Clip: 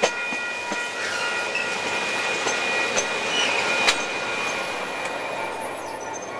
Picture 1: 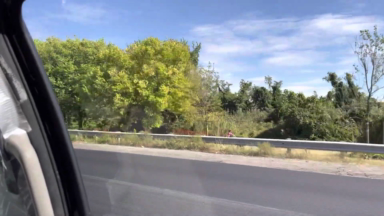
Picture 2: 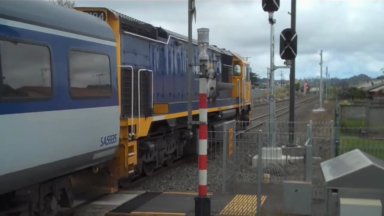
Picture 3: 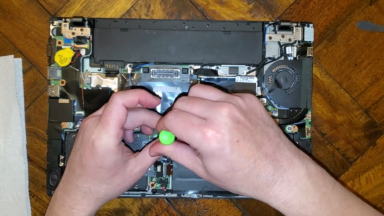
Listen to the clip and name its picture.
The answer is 2